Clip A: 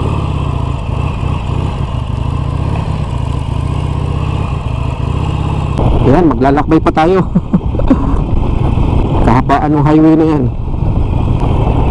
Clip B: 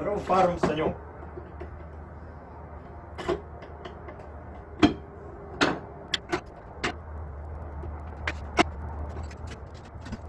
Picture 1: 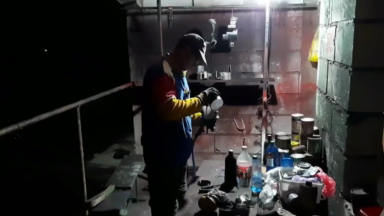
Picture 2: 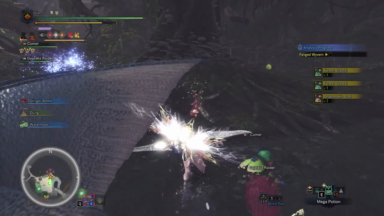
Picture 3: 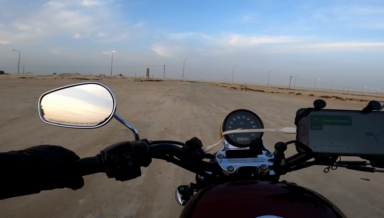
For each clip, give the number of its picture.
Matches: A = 3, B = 1